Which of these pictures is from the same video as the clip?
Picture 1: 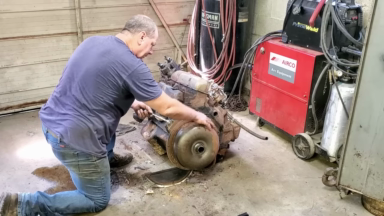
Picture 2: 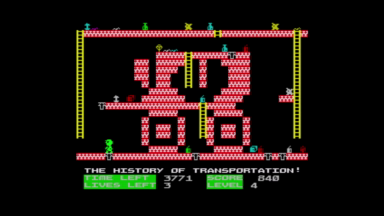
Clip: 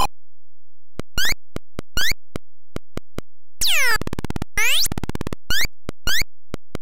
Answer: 2